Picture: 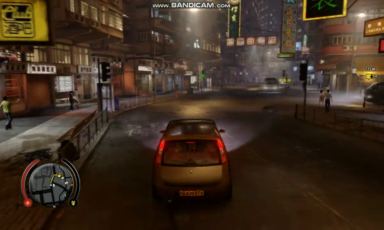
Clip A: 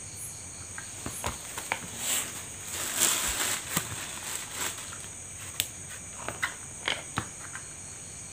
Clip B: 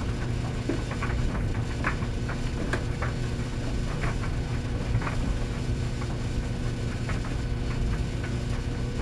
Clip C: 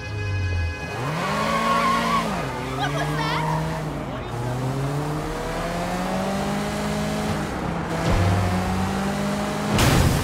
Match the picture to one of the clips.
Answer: C